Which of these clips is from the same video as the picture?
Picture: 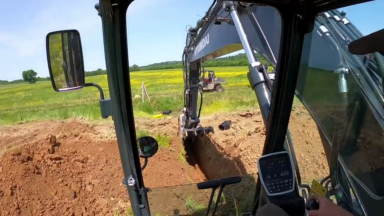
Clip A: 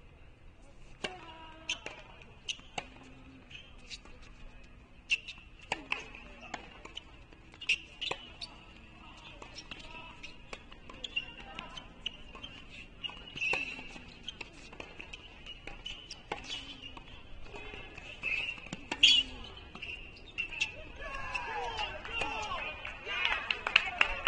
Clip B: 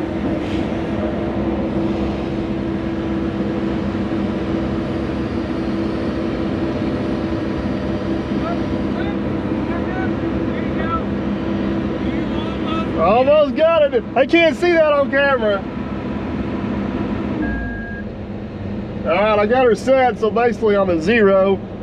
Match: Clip B